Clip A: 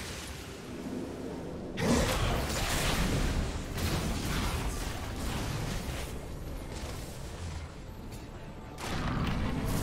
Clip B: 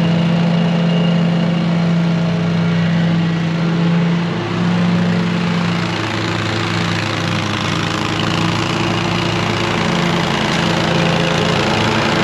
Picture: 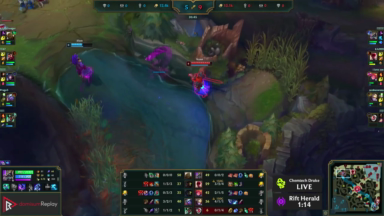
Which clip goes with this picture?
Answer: A